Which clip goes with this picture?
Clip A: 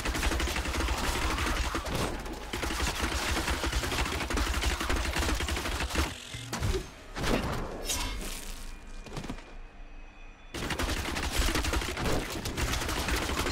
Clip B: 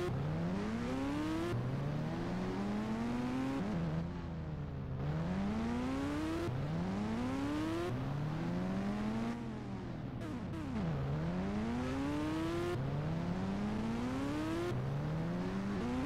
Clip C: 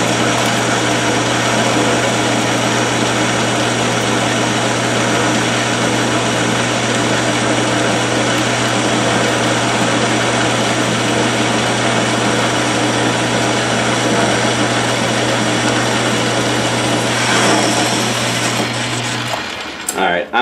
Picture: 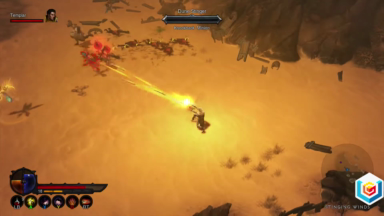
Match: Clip A